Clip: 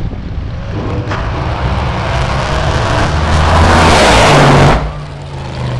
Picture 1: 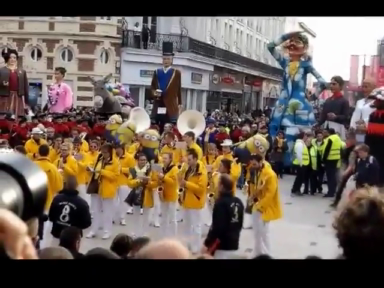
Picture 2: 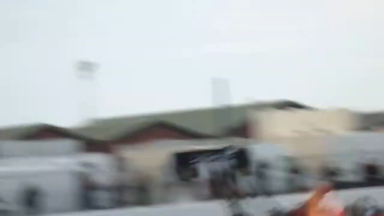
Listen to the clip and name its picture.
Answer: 2